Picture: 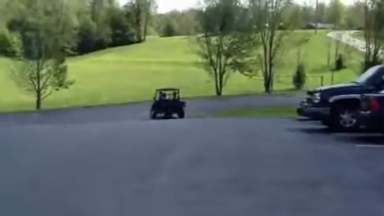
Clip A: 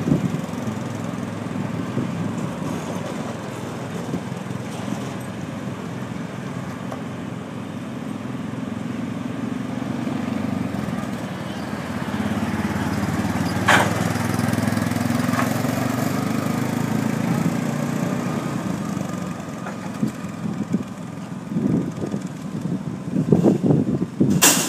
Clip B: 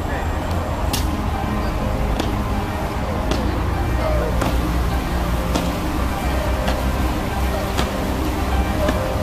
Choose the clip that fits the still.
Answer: A